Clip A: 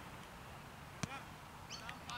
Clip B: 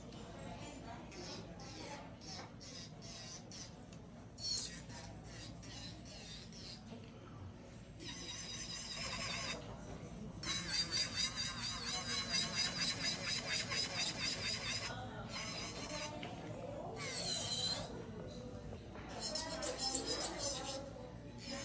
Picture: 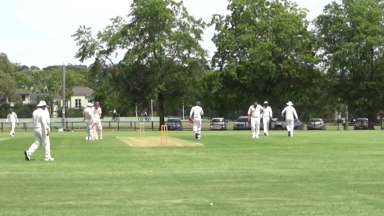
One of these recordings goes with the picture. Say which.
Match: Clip A